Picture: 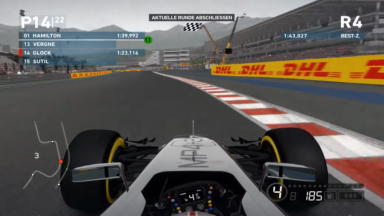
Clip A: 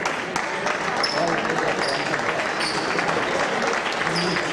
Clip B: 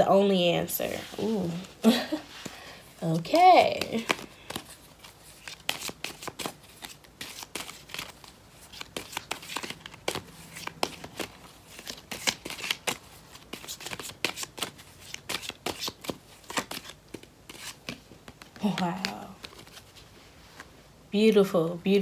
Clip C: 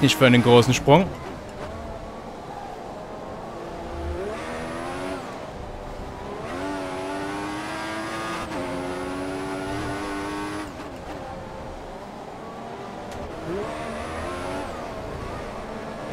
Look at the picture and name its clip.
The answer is C